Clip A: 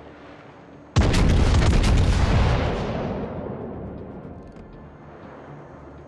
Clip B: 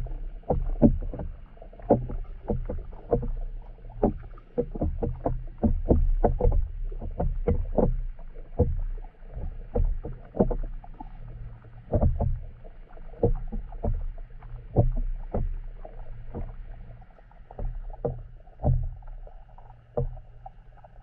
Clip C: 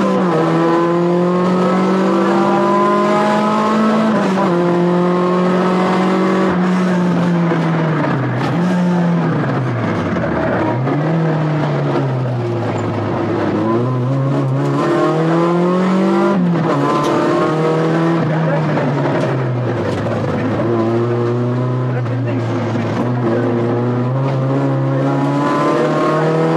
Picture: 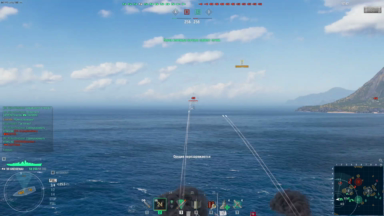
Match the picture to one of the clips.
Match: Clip A